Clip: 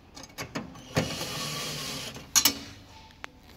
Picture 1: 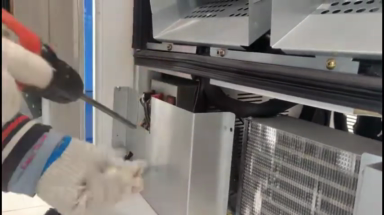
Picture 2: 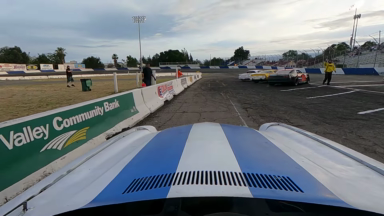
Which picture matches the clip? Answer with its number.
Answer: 1